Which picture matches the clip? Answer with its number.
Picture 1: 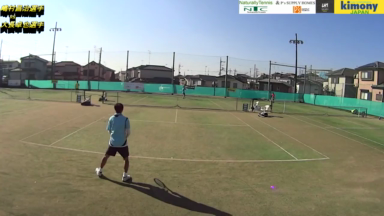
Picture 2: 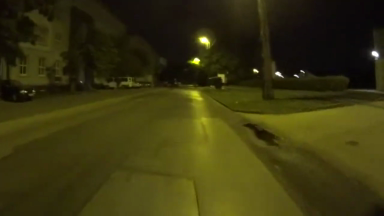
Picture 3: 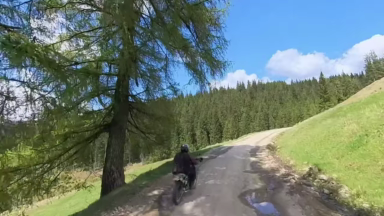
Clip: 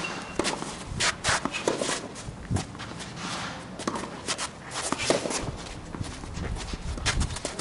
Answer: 1